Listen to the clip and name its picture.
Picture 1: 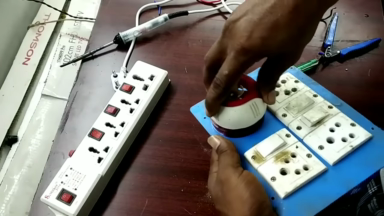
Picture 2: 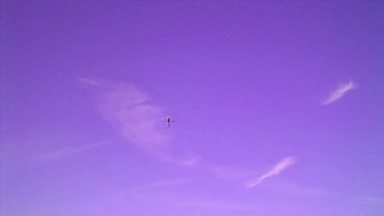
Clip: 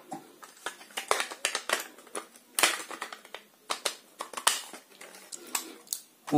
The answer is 1